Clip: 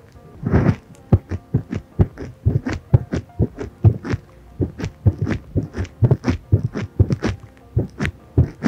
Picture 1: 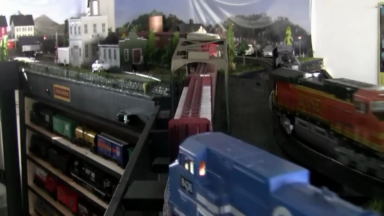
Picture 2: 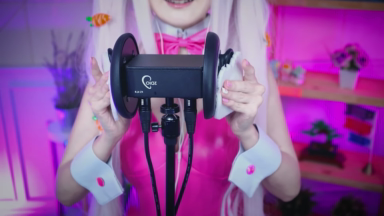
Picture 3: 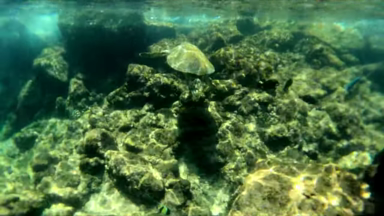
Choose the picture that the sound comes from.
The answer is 2